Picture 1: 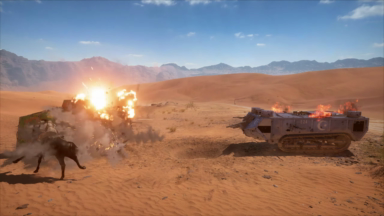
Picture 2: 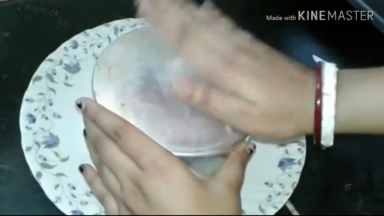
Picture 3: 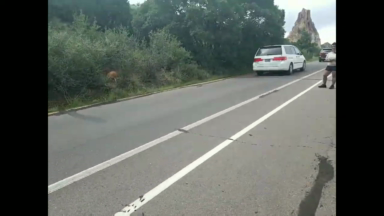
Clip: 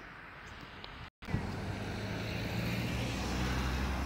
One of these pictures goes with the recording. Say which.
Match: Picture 3